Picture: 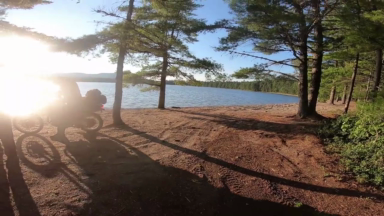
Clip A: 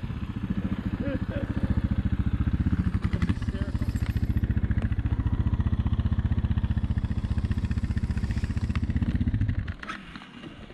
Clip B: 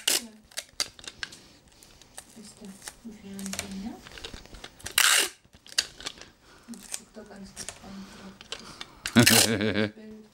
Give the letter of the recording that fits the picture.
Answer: A